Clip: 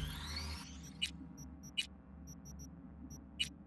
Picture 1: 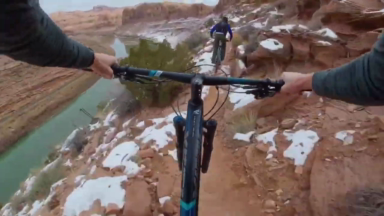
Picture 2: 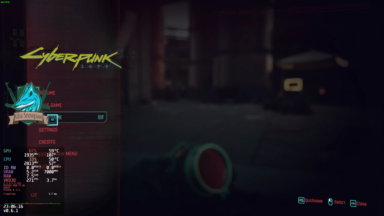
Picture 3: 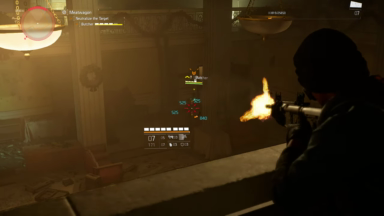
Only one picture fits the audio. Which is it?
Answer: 2